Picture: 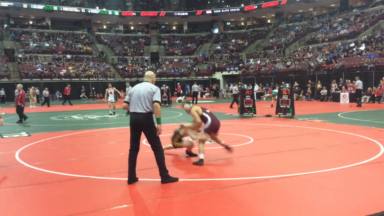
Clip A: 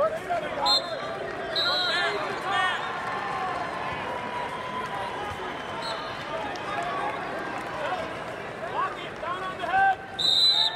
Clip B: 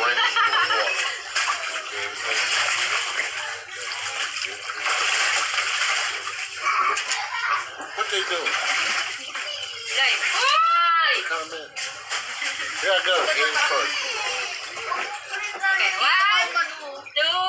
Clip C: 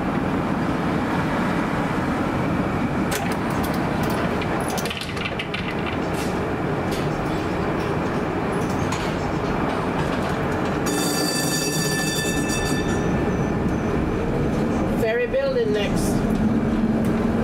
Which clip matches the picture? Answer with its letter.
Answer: A